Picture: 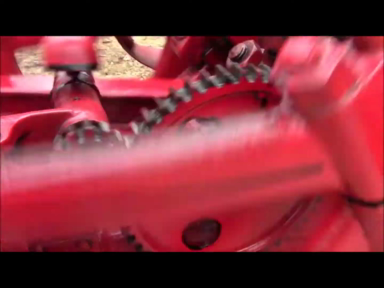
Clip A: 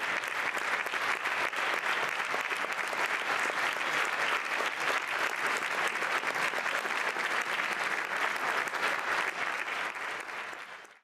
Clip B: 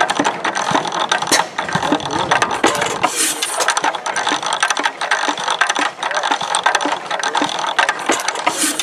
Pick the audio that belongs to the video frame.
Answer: B